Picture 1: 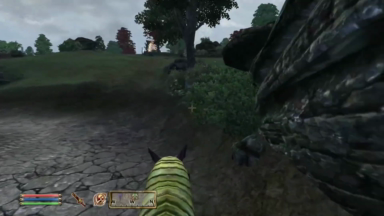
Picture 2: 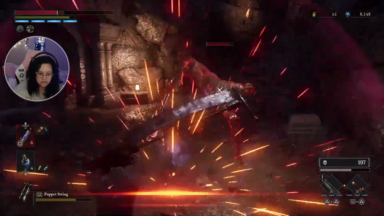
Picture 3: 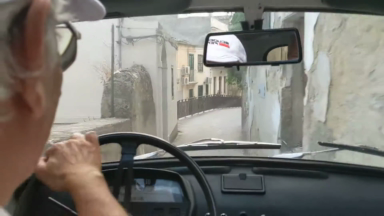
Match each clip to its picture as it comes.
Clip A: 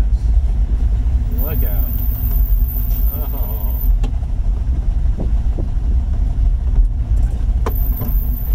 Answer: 3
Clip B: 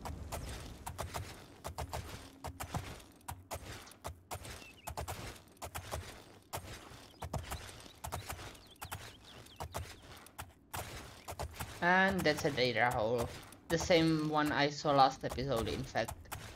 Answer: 1